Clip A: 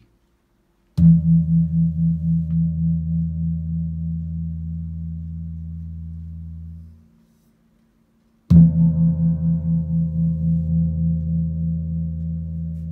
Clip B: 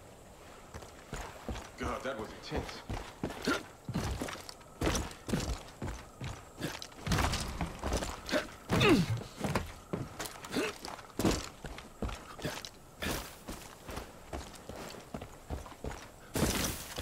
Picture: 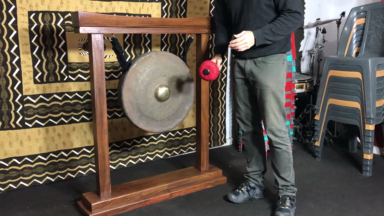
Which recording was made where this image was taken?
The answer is A